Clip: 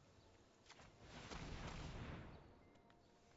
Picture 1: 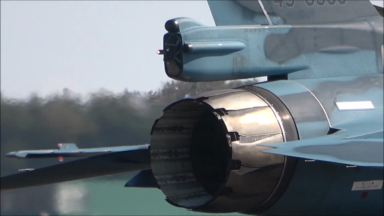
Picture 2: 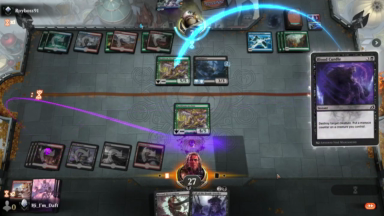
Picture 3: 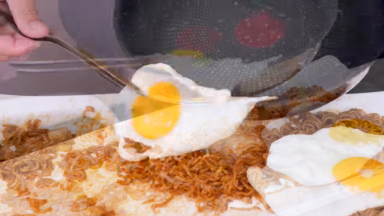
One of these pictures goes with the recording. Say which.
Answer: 2